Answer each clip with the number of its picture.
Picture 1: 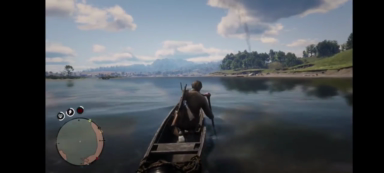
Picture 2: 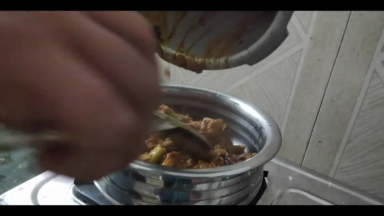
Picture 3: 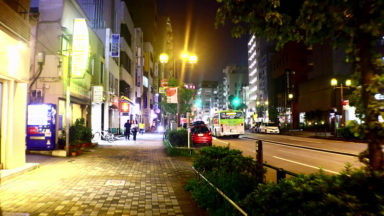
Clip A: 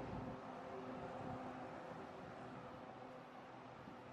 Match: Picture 3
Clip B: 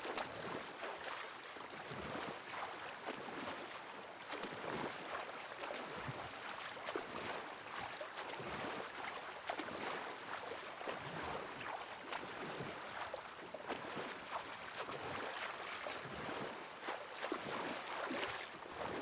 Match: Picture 1